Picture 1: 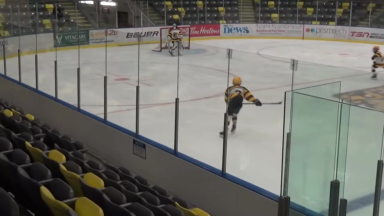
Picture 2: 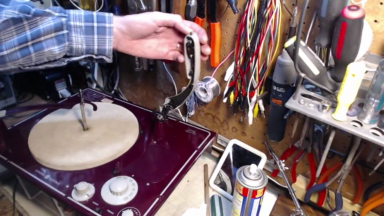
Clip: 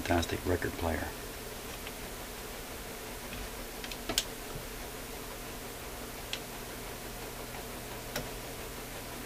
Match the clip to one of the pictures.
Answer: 2